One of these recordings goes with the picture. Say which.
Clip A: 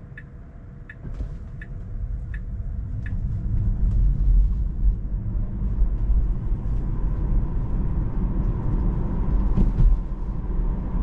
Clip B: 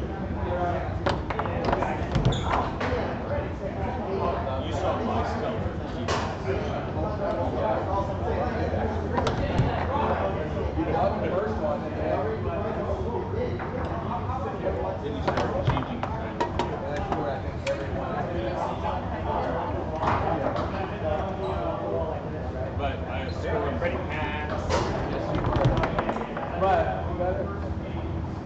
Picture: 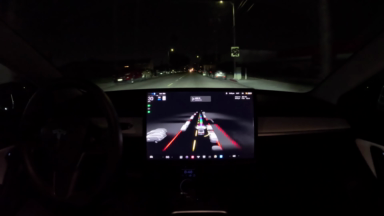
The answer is A